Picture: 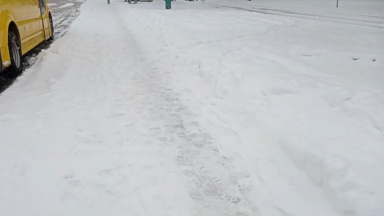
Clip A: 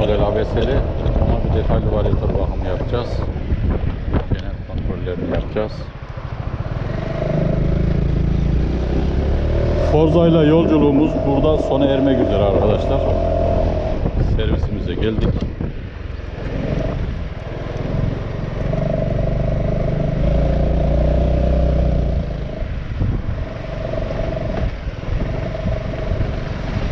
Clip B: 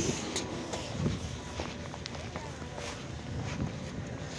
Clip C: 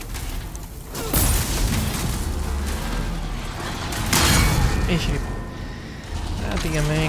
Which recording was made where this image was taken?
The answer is B